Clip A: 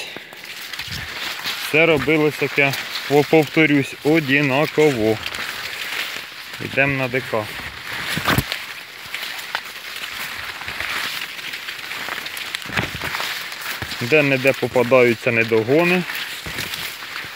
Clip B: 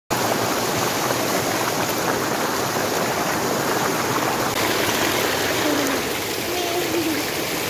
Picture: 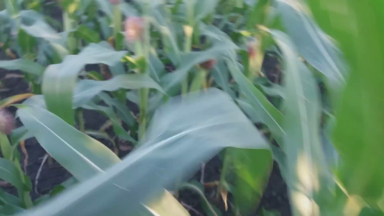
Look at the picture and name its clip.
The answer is A